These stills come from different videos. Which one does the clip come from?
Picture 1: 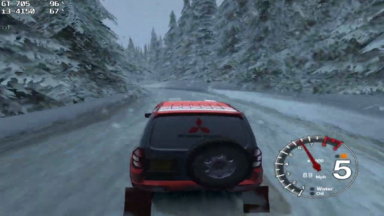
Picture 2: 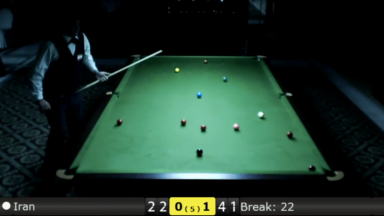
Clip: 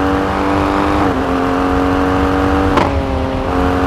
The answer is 1